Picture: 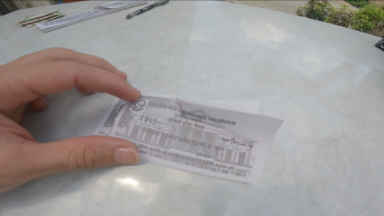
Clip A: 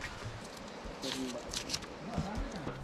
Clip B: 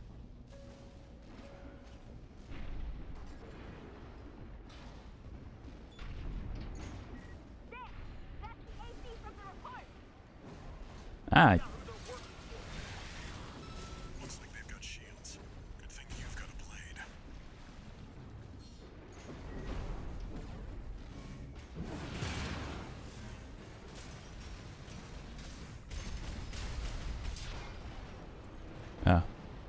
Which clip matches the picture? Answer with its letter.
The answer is A